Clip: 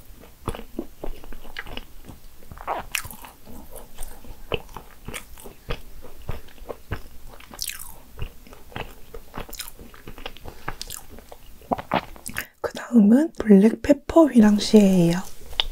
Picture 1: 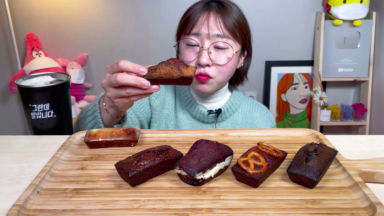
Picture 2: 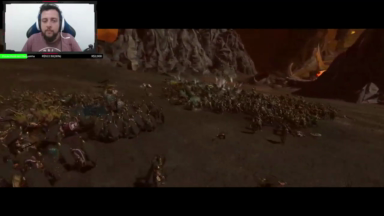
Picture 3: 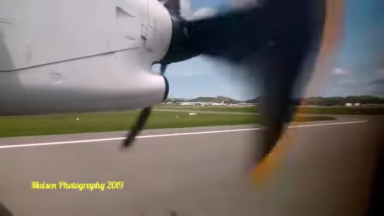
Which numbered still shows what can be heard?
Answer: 1